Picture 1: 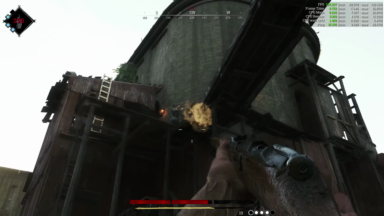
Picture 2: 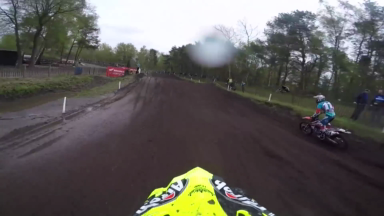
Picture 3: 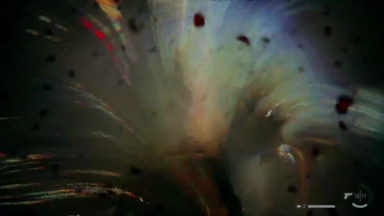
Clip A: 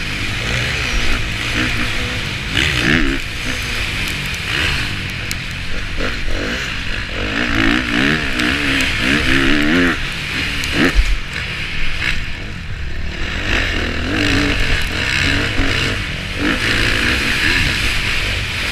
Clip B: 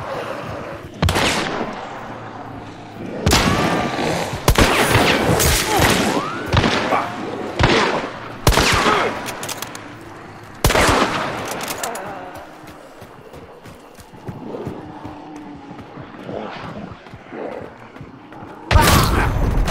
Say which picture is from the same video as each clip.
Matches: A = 2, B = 1